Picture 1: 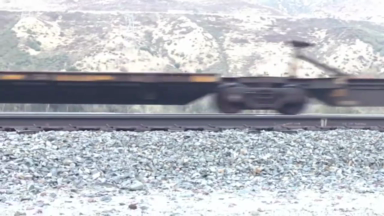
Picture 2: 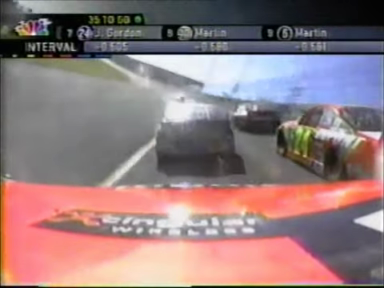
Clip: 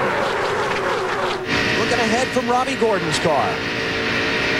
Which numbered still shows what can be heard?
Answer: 2